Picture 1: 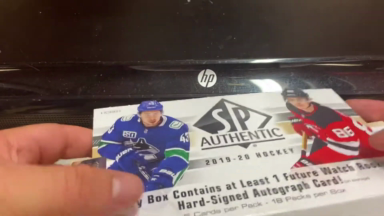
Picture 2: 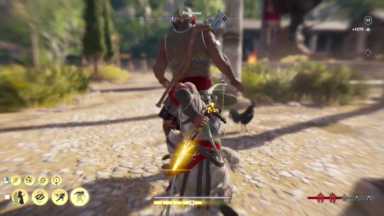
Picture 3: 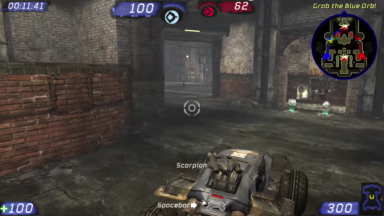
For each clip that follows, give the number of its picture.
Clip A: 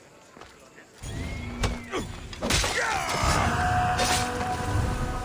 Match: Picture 2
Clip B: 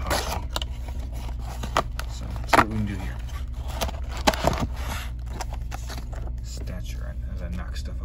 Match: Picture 1